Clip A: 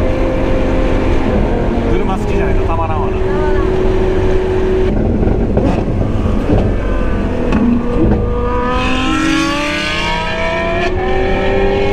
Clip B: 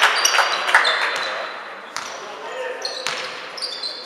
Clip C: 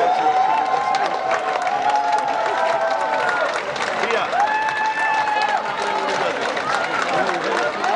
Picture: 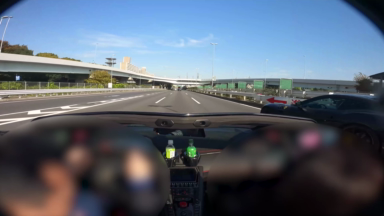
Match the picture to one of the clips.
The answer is A